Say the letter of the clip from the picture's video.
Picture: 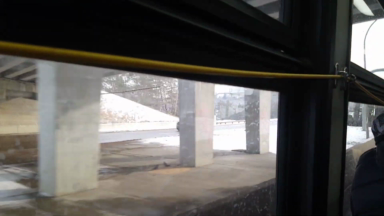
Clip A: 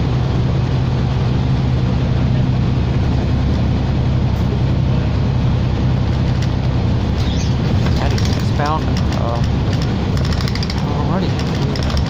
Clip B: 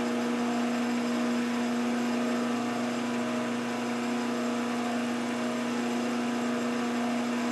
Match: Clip A